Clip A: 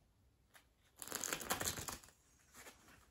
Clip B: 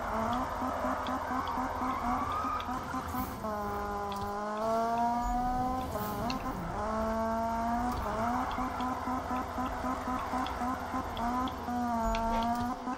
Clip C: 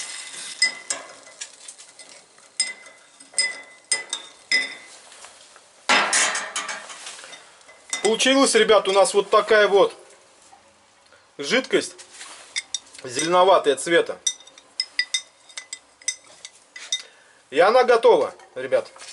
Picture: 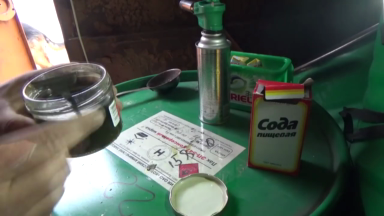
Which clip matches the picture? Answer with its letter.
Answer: C